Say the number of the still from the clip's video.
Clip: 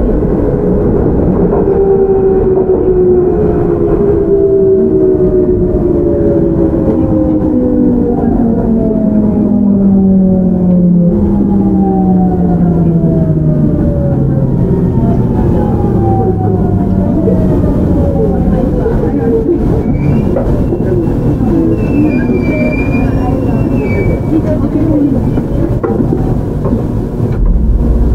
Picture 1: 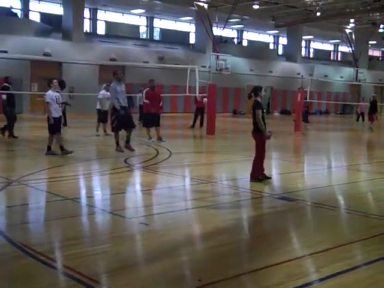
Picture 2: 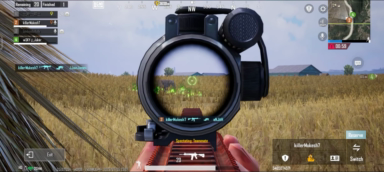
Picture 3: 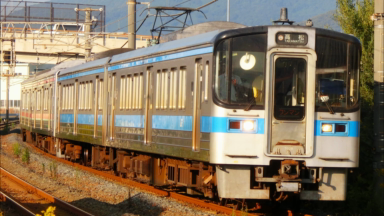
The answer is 3